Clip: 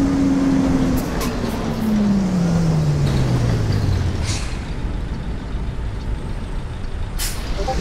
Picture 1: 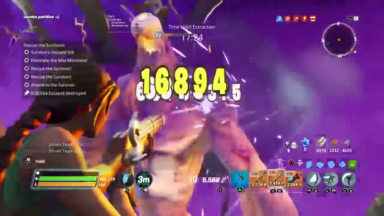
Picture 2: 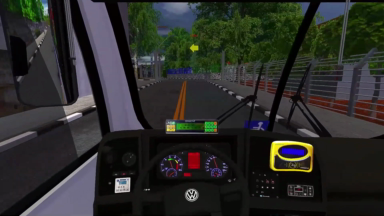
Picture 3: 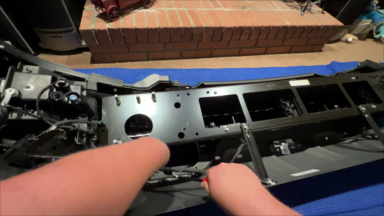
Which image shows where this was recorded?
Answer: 2